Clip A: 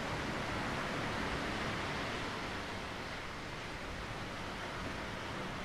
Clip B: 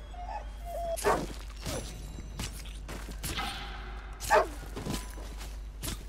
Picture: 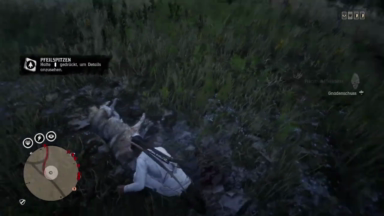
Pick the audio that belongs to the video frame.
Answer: B